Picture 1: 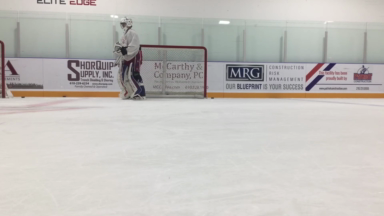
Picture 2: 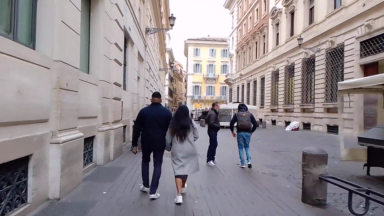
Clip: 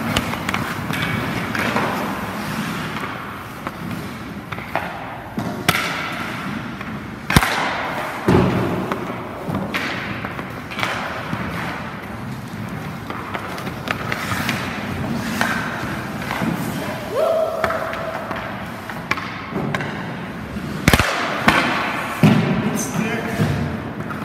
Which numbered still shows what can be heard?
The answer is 1